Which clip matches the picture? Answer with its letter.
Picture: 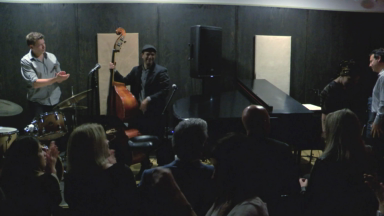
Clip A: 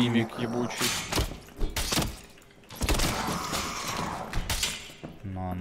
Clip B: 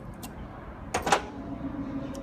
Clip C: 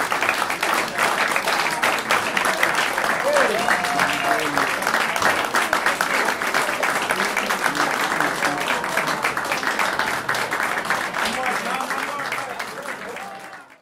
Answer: C